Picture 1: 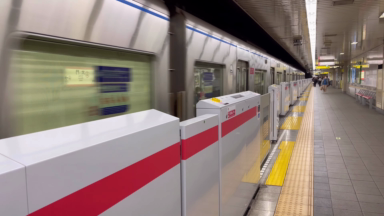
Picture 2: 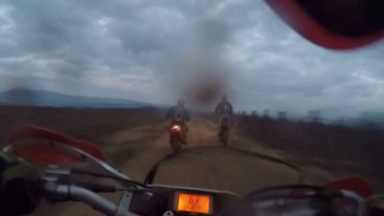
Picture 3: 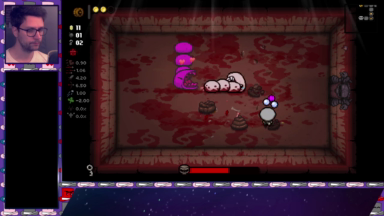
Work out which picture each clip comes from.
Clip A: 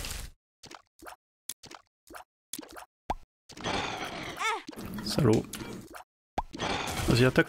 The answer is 3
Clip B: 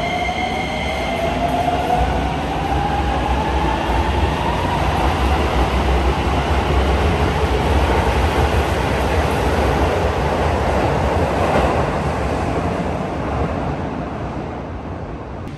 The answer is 1